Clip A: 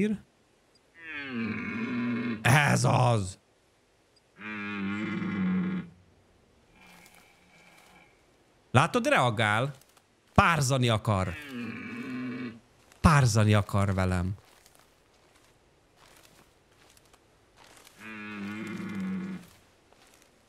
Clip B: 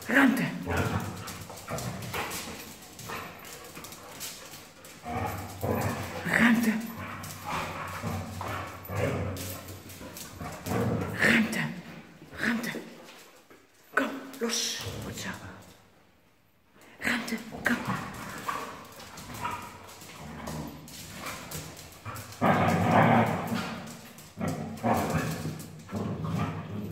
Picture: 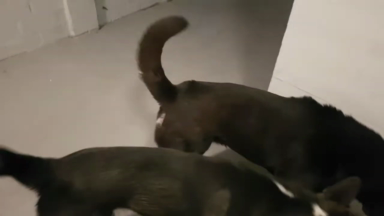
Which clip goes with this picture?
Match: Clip B